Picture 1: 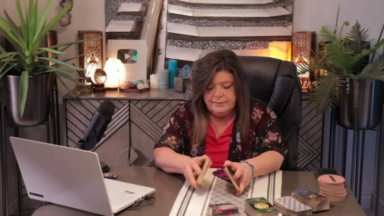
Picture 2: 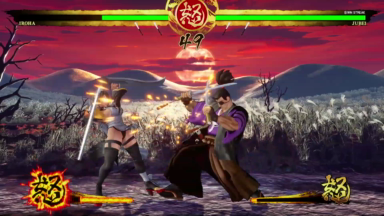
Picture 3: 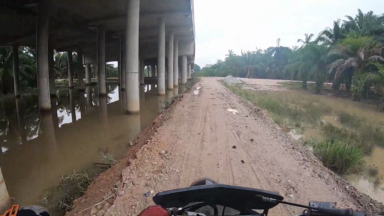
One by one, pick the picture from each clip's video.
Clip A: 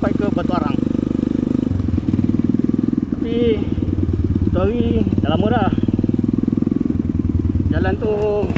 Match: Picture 3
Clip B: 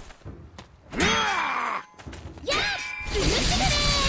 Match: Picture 2